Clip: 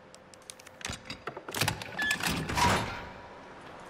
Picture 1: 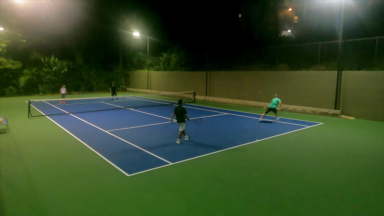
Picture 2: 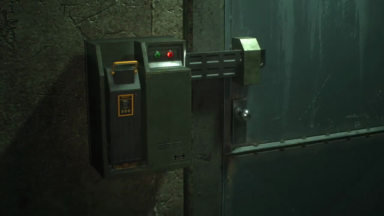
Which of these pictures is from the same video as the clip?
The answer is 2